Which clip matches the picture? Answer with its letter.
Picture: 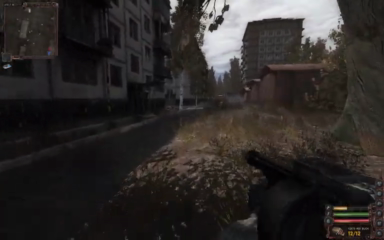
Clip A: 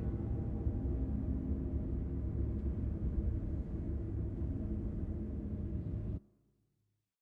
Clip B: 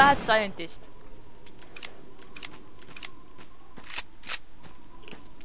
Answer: B